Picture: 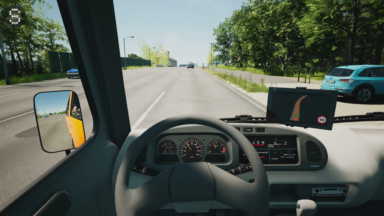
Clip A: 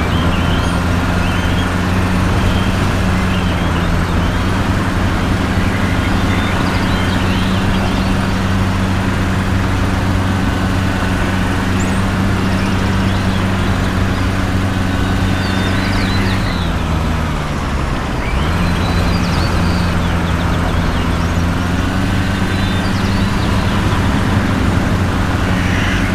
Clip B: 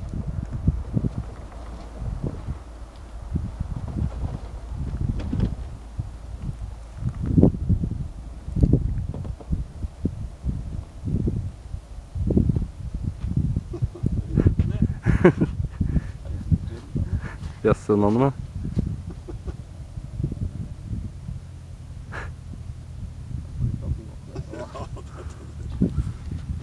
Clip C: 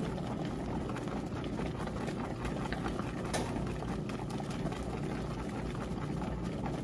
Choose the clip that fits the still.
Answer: A